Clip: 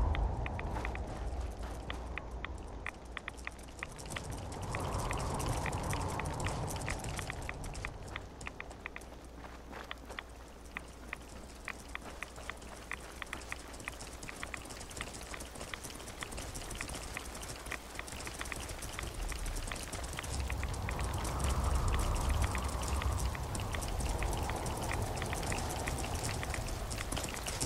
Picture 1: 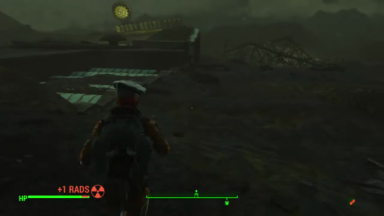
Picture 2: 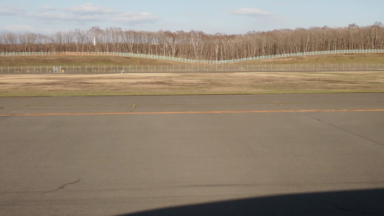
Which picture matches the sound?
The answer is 1